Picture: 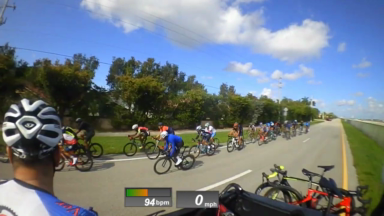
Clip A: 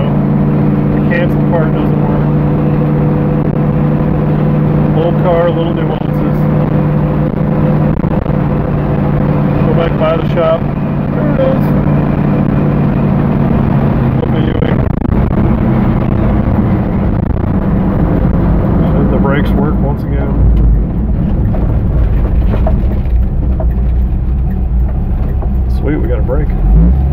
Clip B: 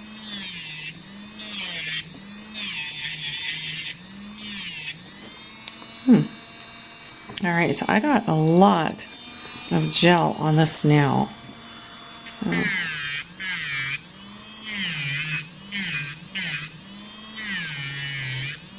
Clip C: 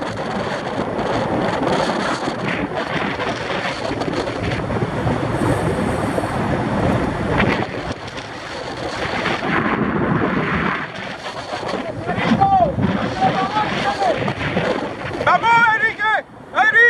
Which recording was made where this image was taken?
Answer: C